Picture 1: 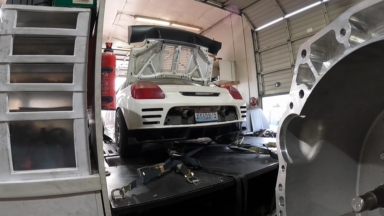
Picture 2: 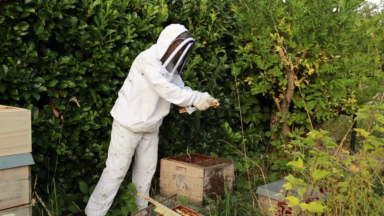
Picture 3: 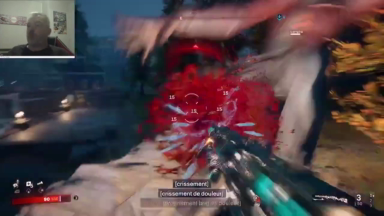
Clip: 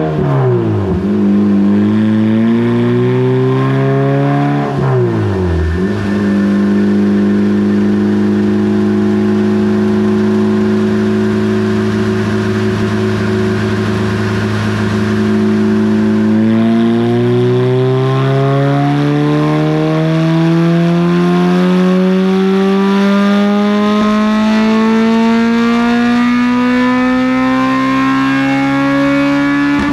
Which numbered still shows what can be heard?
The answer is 1